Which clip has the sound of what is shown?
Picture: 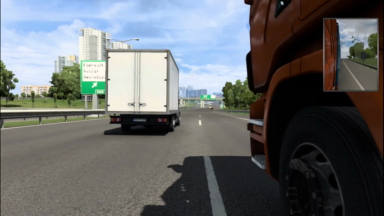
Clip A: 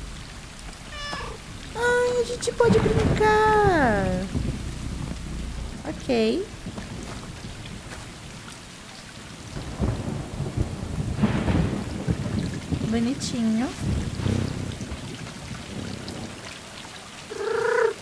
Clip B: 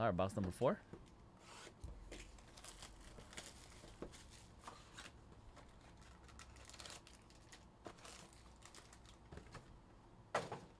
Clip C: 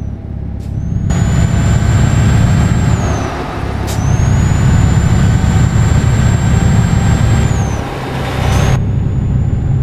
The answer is C